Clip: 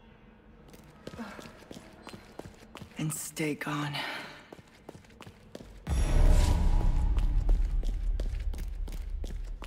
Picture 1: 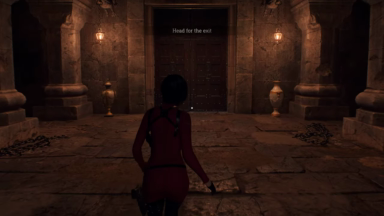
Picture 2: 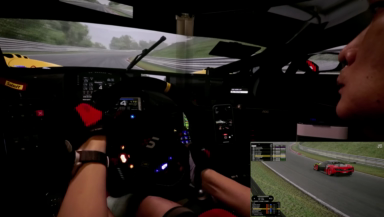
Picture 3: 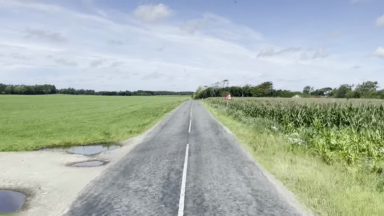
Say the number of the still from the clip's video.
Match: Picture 1